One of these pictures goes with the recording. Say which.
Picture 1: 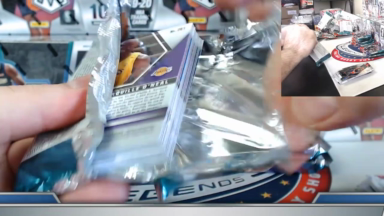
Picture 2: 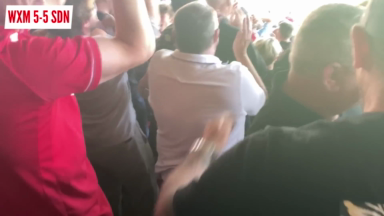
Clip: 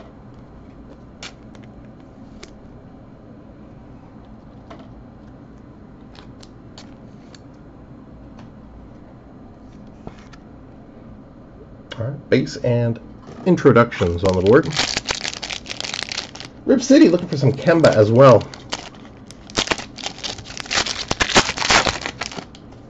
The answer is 1